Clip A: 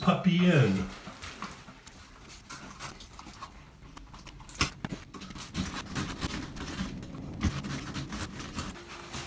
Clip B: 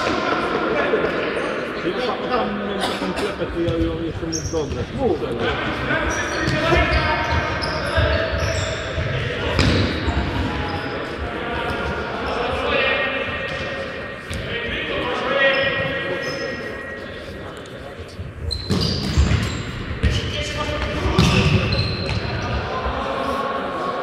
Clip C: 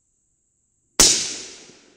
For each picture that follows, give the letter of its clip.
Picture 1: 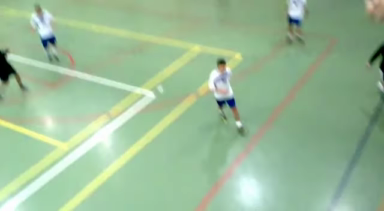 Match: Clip B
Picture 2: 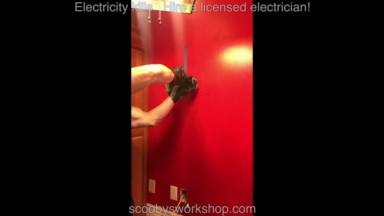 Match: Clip A